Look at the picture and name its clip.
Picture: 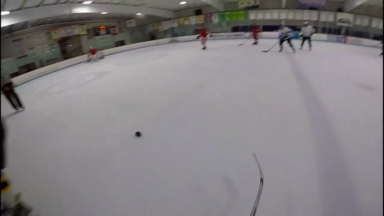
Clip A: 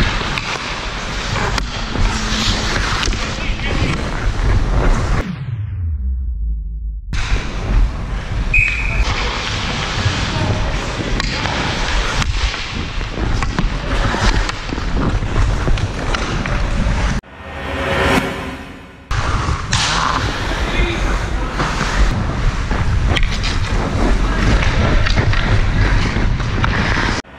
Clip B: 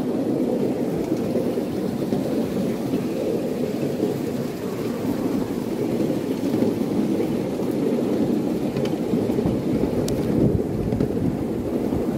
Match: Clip A